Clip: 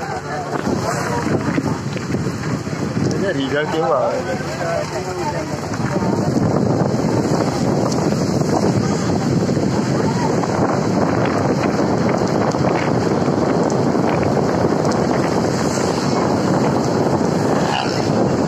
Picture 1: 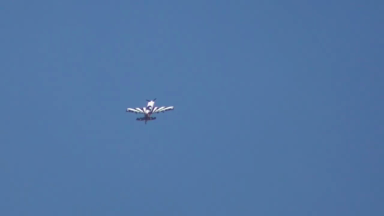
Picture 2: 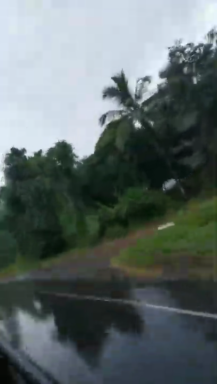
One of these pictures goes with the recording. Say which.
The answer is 2